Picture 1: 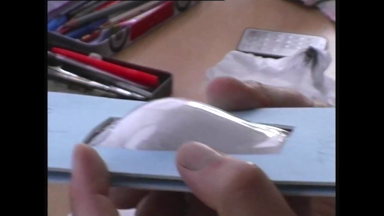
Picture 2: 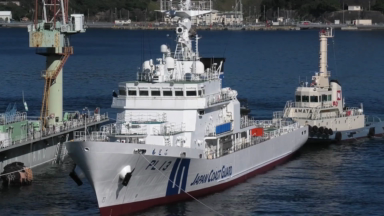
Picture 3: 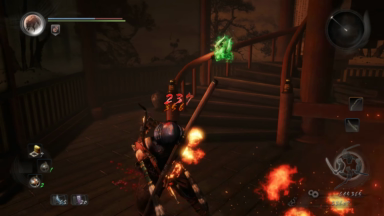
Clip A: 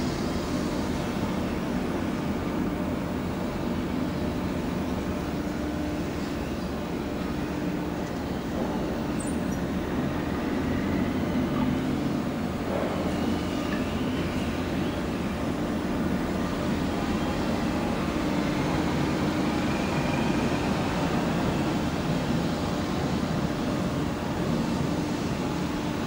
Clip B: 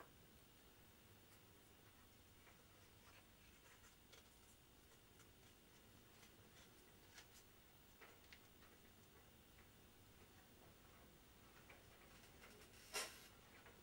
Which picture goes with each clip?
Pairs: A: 2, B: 1